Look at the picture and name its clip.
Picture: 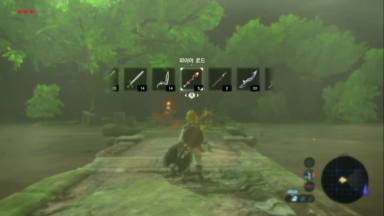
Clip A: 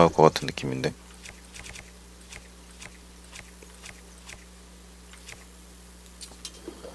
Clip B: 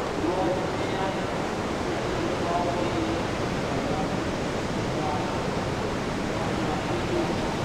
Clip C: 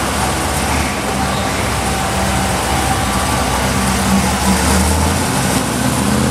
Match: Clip A